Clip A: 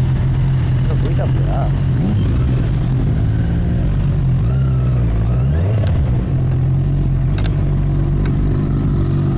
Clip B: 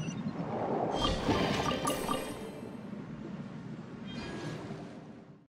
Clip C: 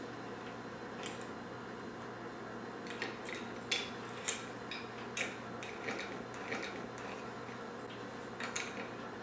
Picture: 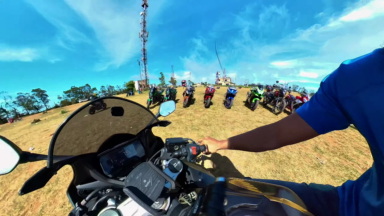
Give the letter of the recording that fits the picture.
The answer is A